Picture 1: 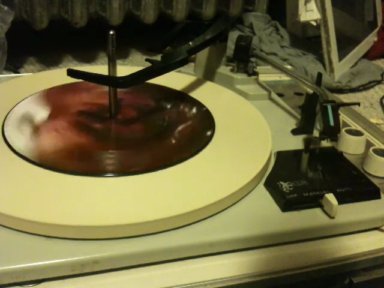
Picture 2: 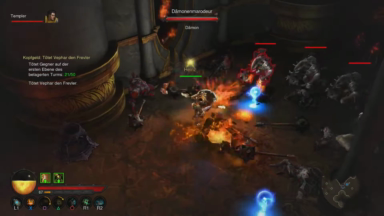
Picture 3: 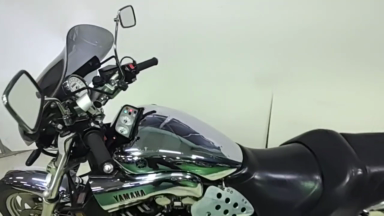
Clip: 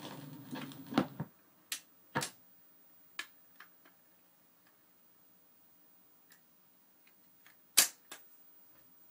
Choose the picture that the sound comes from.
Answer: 1